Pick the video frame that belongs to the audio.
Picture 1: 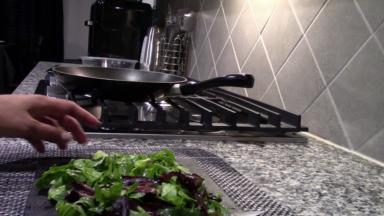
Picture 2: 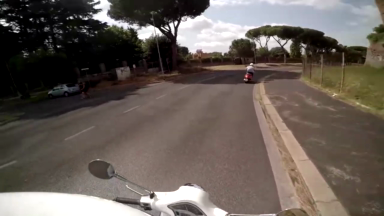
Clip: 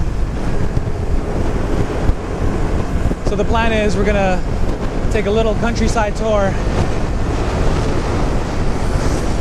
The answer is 2